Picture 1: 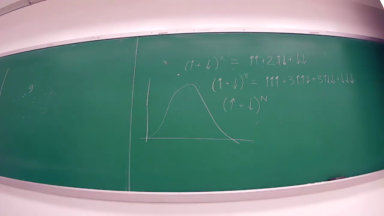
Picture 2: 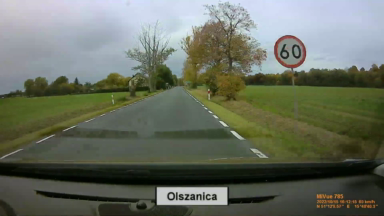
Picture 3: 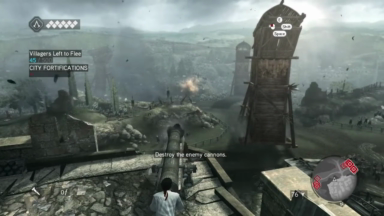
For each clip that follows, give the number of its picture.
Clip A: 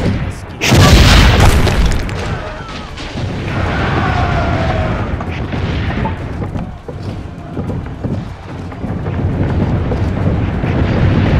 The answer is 3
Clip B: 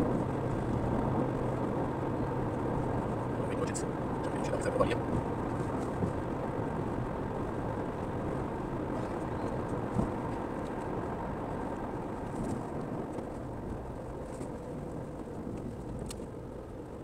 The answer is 2